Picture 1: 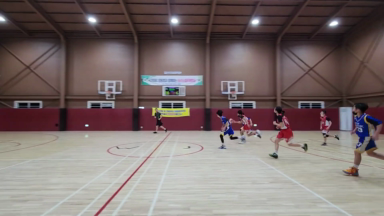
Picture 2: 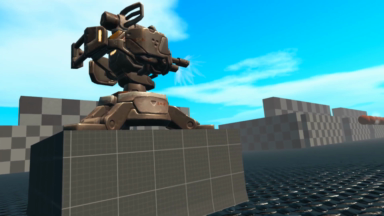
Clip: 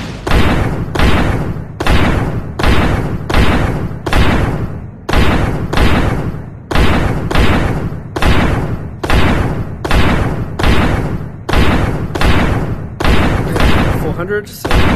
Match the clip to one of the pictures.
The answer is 2